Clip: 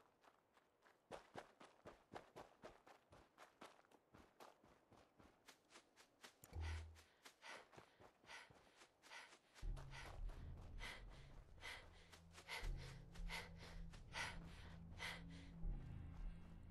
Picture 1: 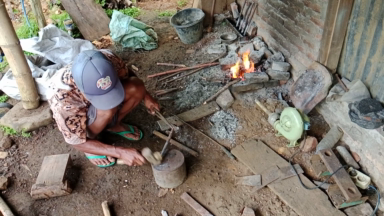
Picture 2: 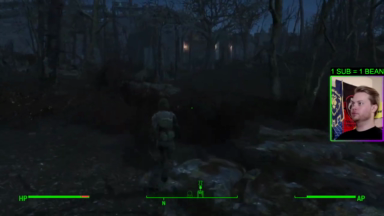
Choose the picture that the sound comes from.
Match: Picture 2